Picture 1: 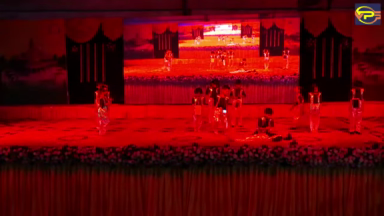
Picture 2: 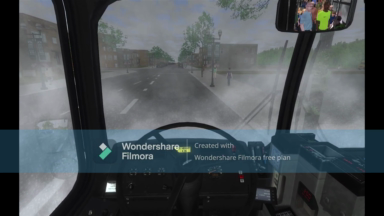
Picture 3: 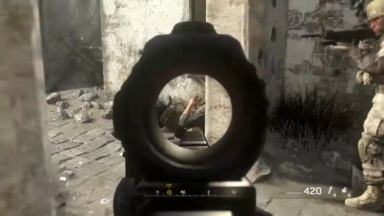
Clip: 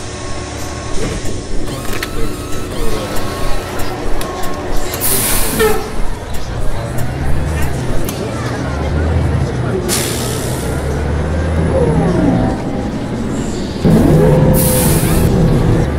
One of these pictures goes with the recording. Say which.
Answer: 2